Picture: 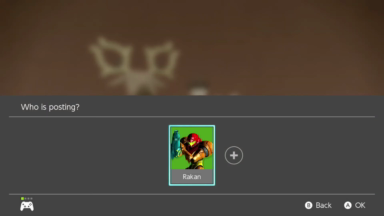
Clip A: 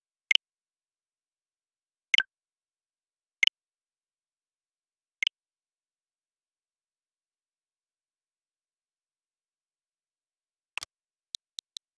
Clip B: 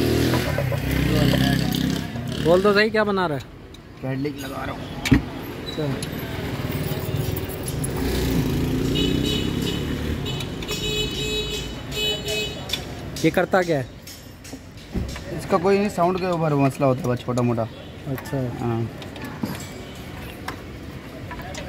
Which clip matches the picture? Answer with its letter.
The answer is A